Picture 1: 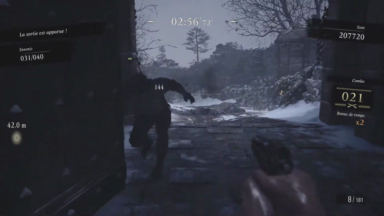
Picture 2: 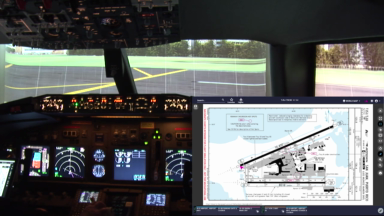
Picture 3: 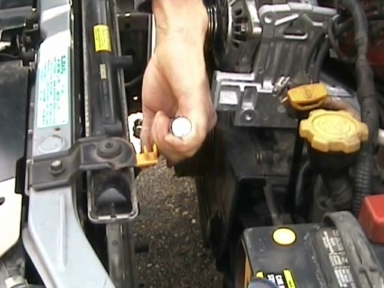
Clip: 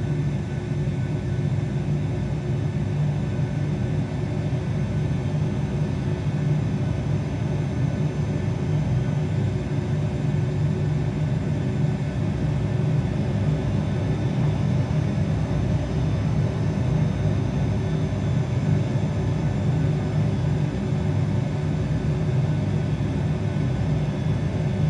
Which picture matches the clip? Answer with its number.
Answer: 2